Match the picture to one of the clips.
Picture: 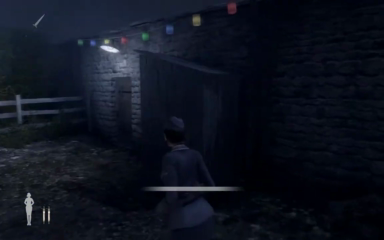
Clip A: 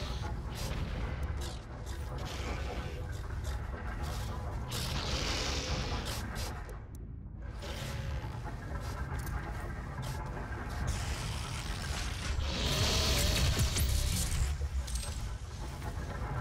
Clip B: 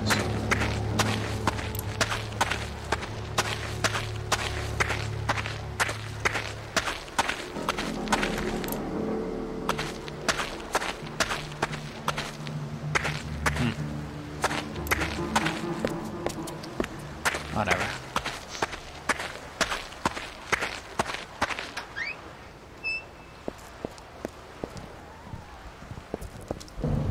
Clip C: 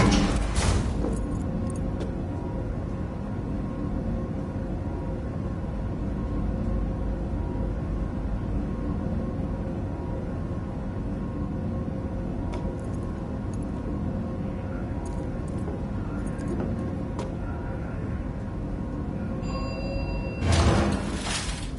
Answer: B